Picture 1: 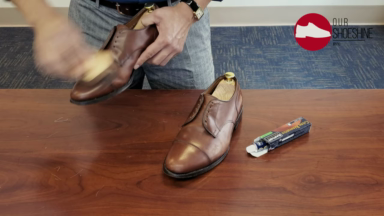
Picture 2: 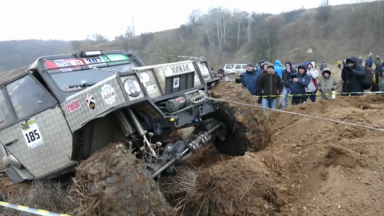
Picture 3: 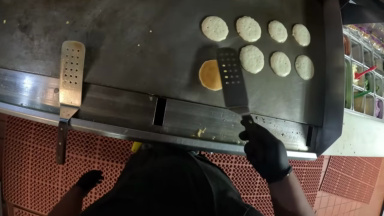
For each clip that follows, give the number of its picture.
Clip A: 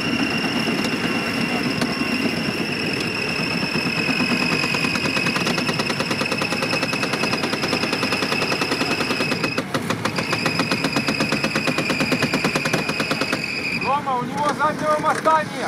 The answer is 2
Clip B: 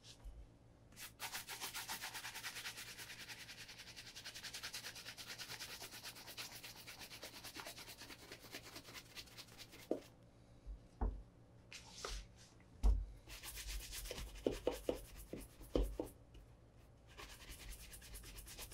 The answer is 1